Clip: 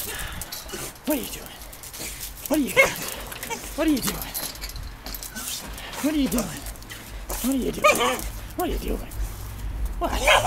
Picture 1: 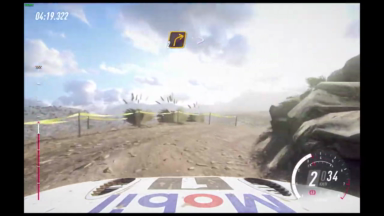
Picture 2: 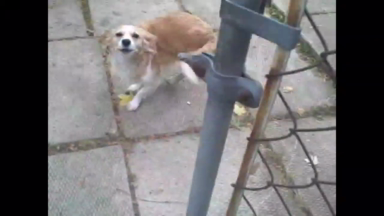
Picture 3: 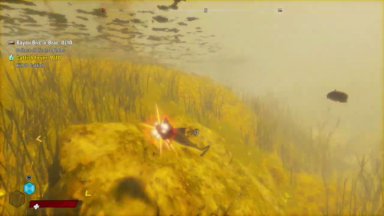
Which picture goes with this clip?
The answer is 2